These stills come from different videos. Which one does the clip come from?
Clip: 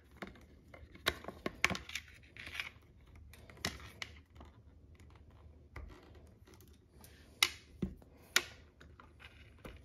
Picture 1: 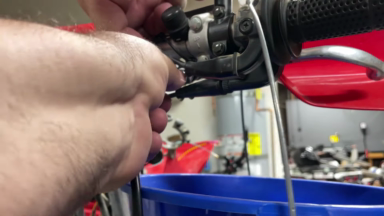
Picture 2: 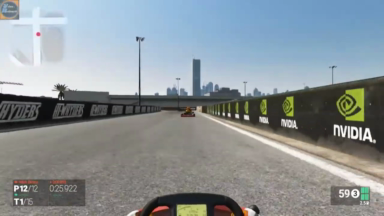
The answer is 1